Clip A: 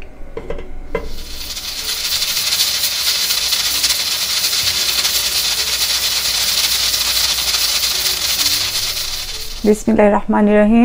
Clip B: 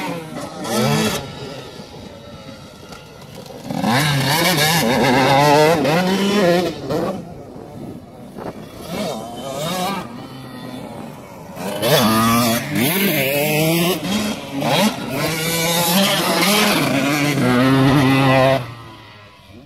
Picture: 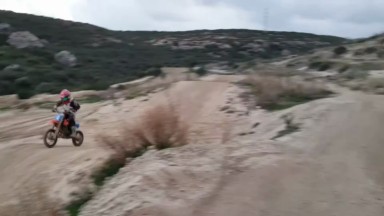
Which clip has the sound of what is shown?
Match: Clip B